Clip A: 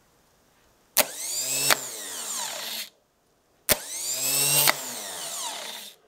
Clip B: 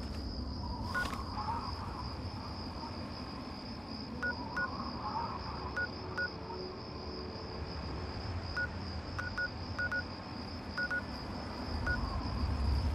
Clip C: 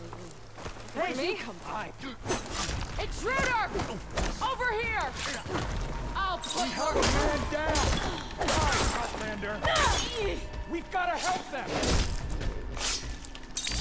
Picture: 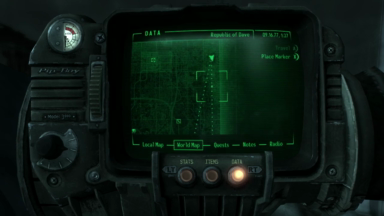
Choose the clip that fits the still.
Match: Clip B